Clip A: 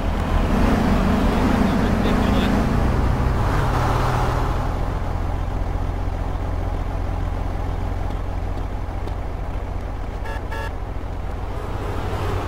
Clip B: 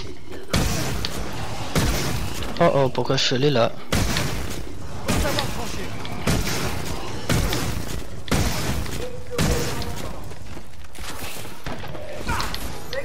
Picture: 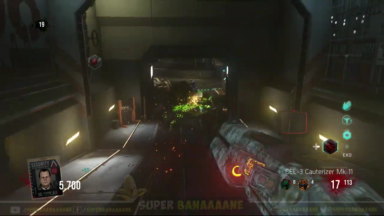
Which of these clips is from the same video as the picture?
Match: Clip B